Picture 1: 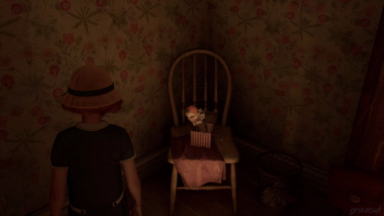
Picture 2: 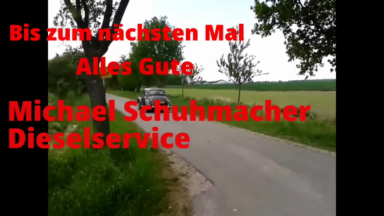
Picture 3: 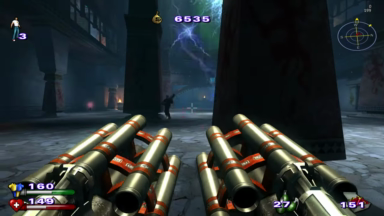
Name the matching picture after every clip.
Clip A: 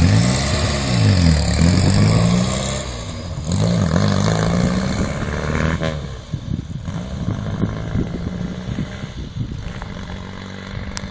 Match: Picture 2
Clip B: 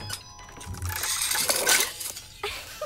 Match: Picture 1